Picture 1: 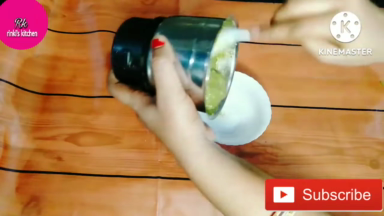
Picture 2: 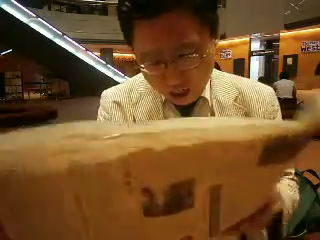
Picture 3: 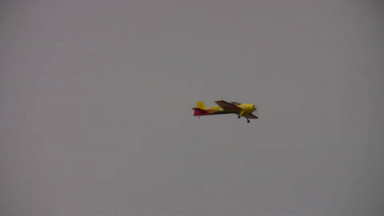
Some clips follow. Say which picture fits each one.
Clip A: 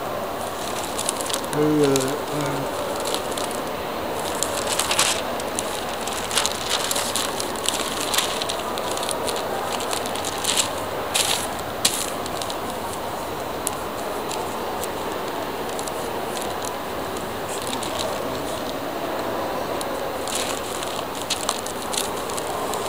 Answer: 2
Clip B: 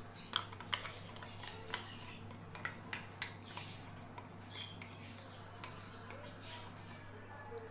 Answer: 1